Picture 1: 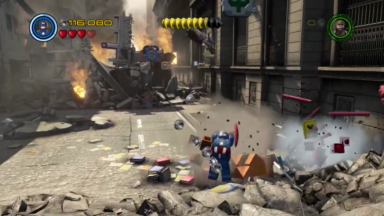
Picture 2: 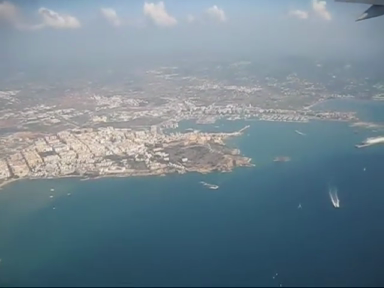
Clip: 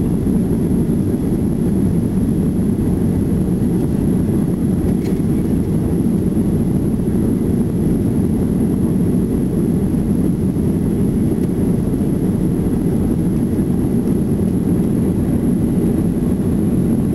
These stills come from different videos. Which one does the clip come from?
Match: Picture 2